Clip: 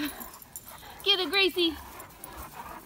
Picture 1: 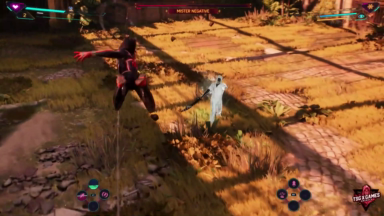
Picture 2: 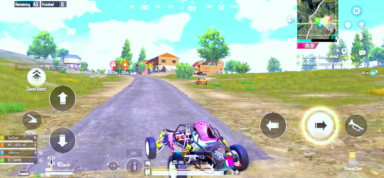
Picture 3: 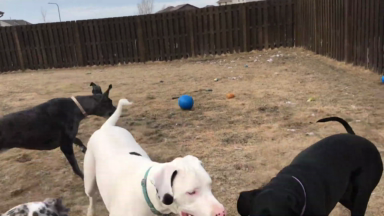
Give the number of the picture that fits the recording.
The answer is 3